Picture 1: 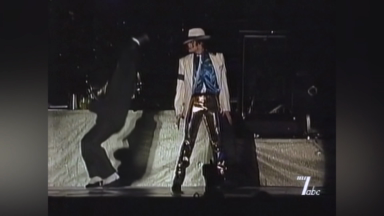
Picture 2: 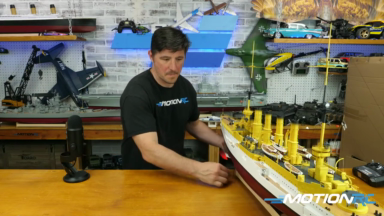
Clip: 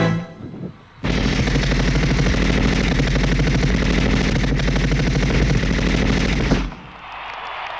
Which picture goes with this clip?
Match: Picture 1